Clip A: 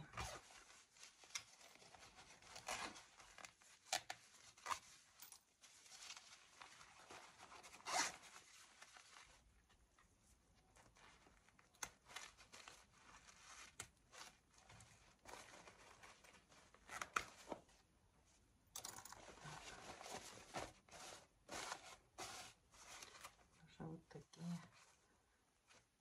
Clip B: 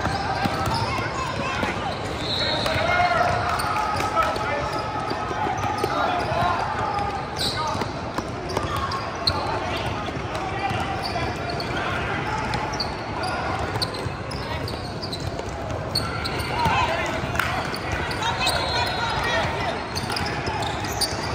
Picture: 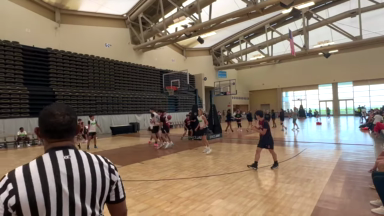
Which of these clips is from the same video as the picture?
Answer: B